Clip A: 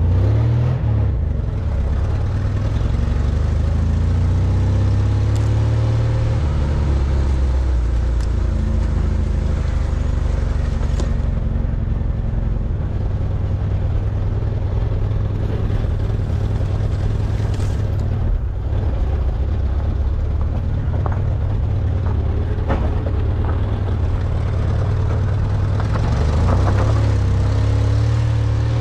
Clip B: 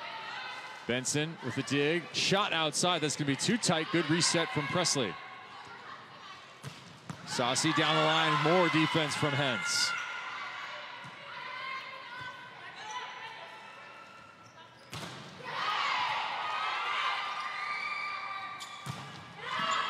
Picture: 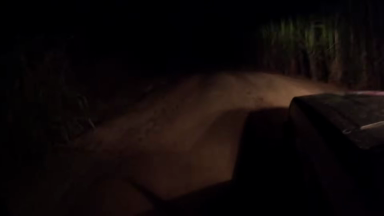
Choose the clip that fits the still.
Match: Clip A